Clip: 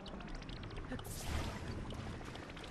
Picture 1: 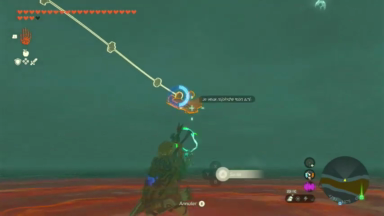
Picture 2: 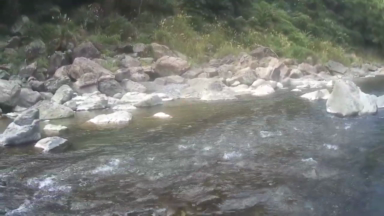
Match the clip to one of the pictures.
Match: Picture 1